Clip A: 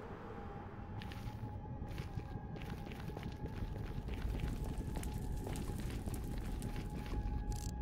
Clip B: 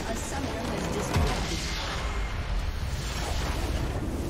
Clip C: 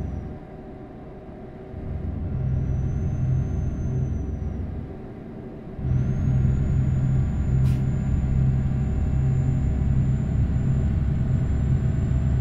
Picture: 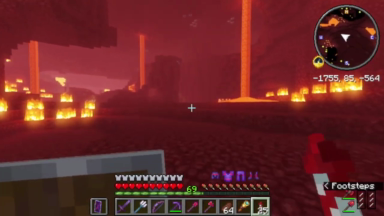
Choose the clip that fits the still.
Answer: A